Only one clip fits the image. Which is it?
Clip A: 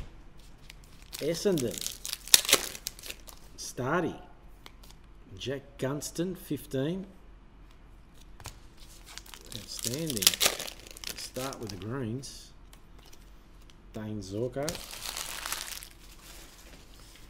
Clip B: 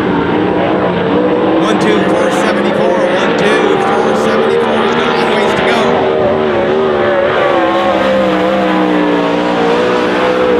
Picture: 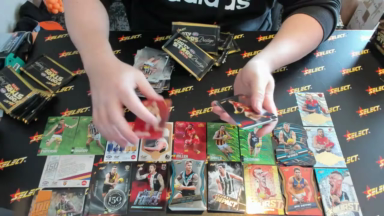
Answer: A